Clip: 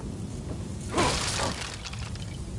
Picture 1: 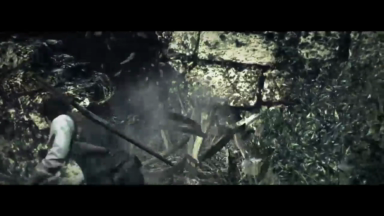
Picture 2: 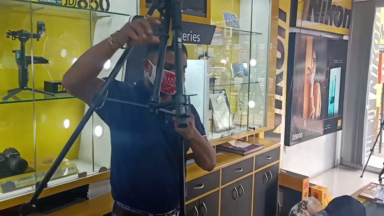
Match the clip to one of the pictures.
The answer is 1